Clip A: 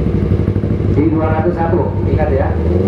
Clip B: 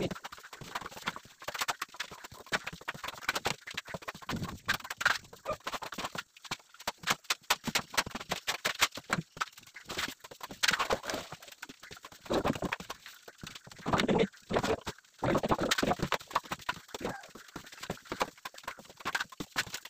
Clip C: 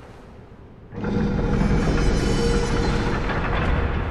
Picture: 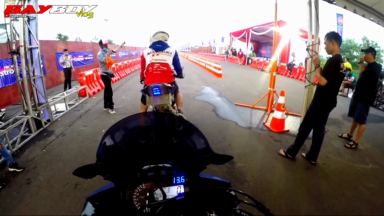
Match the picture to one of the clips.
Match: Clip A